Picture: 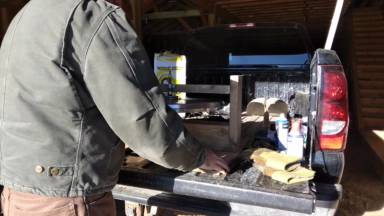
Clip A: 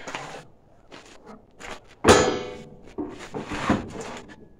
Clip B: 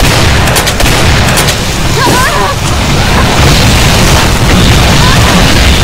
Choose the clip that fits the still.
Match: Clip A